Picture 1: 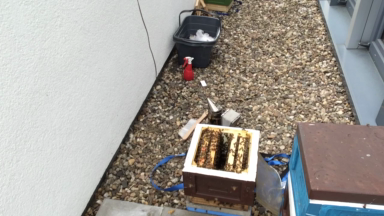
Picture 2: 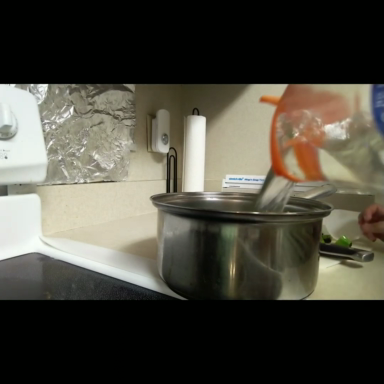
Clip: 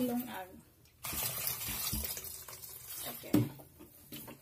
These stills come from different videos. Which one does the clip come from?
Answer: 2